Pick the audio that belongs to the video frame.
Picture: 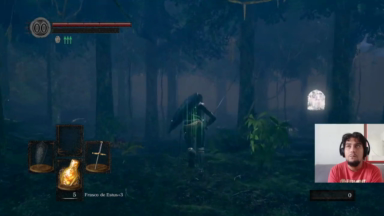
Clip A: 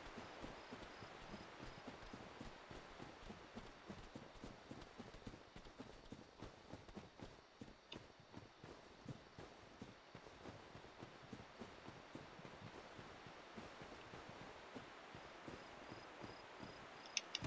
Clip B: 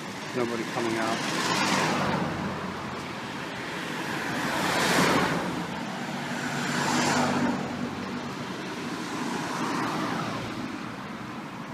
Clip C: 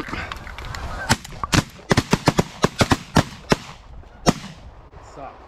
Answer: A